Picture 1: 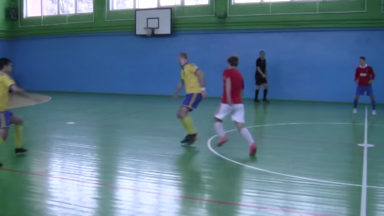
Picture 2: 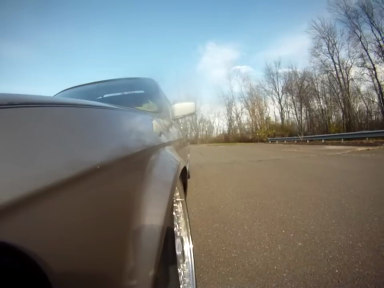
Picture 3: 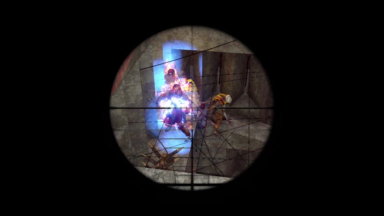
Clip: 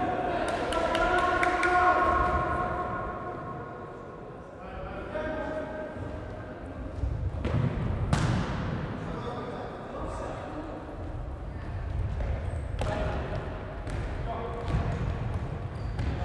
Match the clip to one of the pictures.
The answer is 1